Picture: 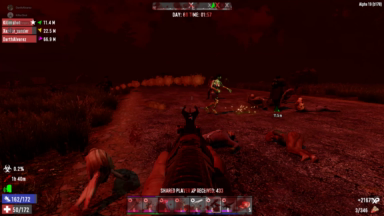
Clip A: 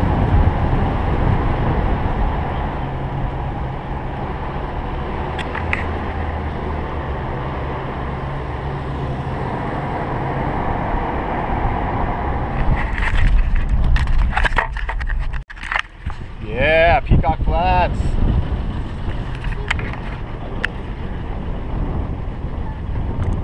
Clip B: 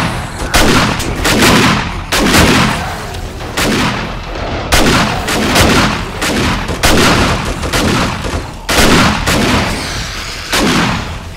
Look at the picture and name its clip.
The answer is B